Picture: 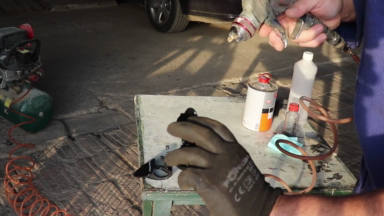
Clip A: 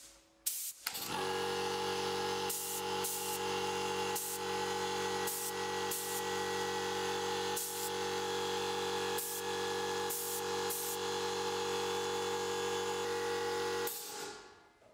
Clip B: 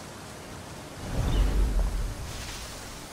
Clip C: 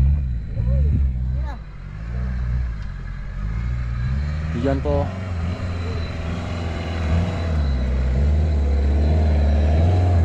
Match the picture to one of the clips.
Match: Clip A